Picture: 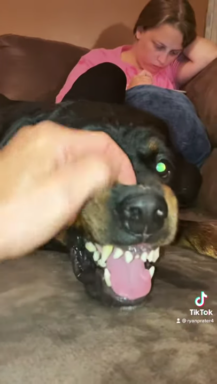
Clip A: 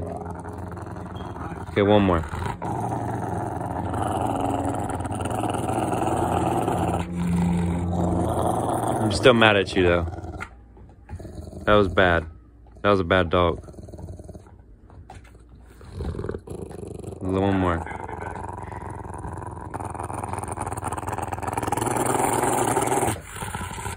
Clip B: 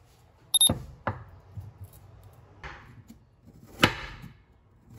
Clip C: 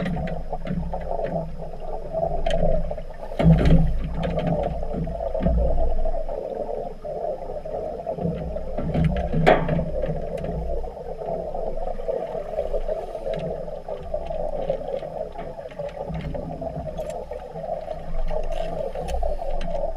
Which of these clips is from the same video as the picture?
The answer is A